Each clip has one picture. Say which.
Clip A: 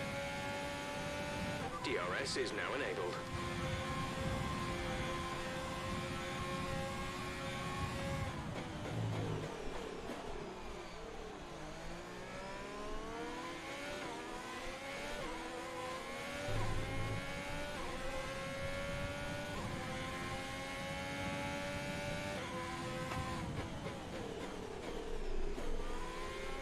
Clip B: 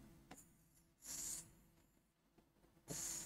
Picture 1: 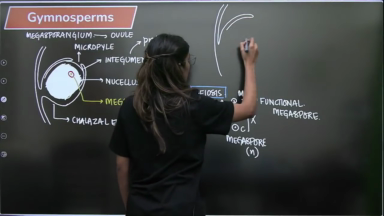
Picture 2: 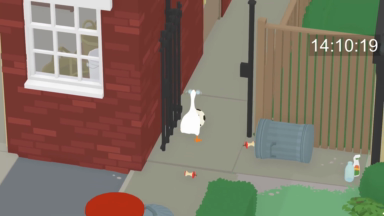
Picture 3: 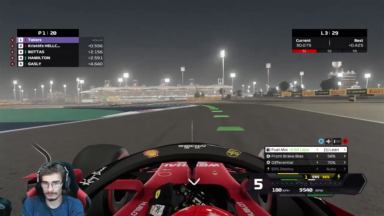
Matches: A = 3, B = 1